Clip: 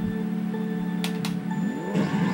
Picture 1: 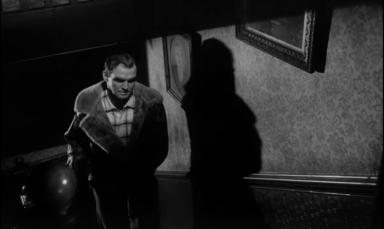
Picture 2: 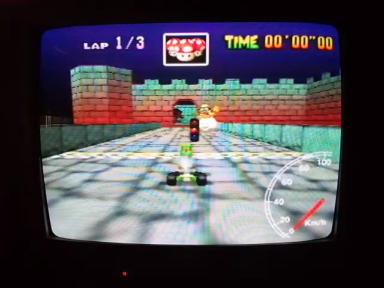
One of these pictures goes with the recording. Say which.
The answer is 2